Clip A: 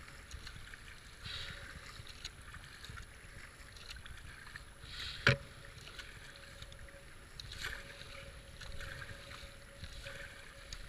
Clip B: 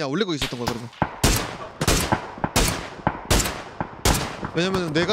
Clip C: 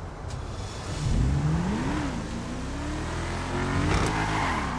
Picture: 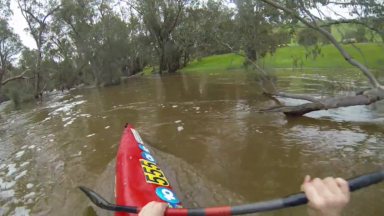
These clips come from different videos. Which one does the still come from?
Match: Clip A